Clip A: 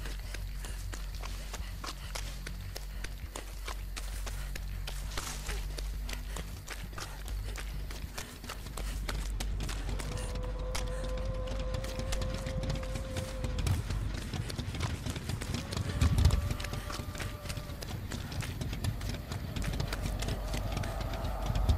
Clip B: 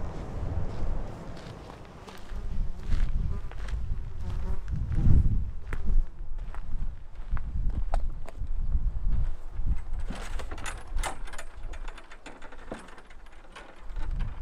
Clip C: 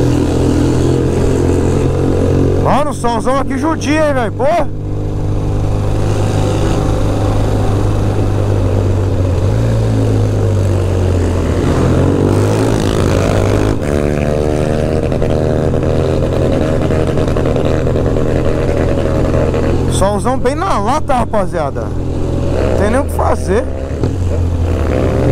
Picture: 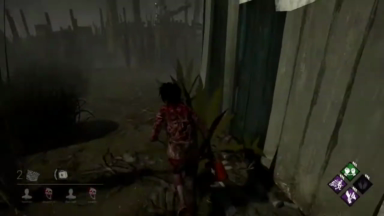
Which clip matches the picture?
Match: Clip A